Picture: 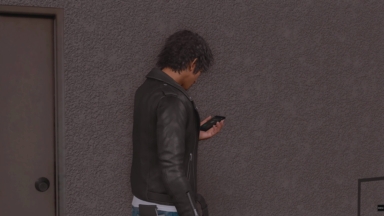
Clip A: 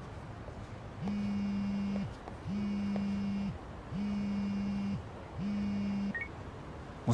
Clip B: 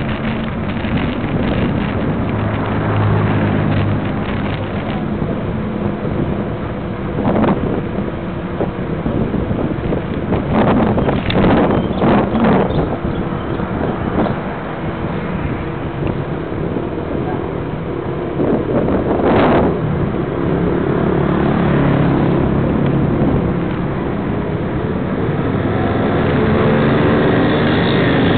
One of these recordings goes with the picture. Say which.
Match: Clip A